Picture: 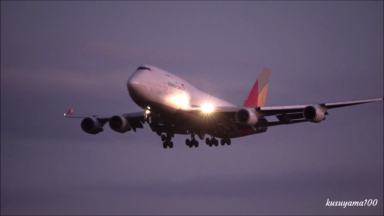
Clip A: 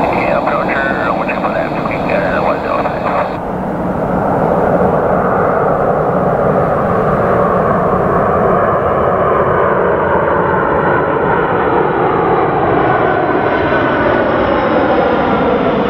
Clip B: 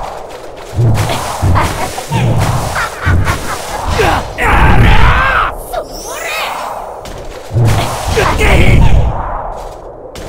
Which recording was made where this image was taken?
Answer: A